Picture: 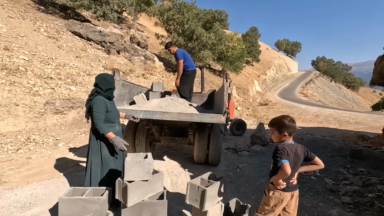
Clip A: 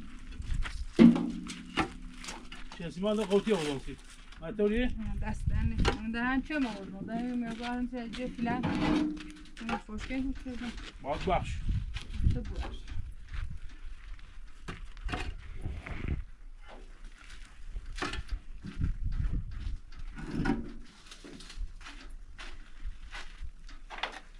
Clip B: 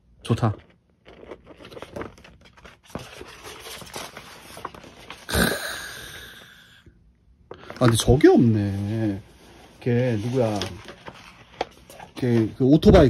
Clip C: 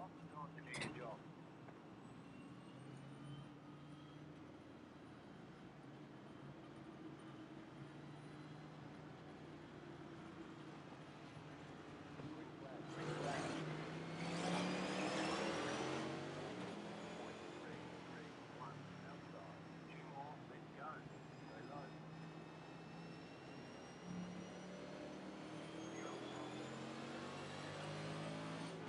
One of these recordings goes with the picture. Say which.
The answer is A